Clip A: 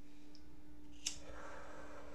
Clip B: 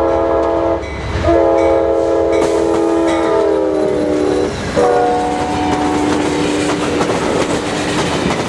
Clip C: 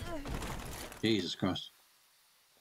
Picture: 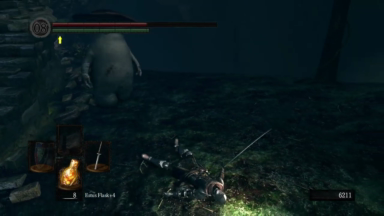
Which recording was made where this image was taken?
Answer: C